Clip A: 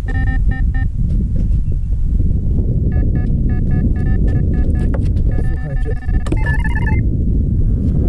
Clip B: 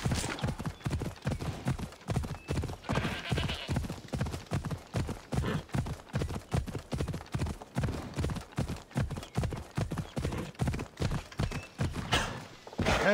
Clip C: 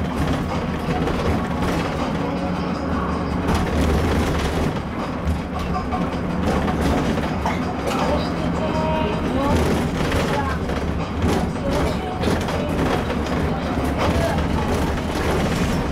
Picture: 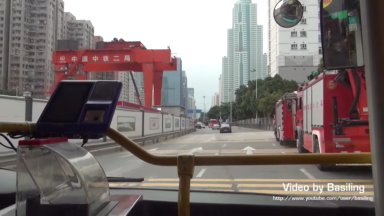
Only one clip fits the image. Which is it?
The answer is C